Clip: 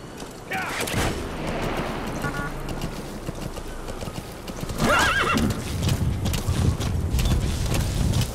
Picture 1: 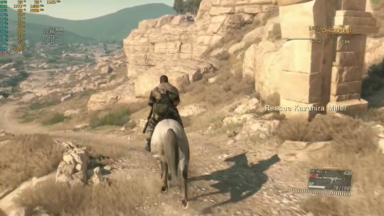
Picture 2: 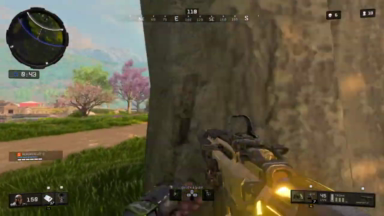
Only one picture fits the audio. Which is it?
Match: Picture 1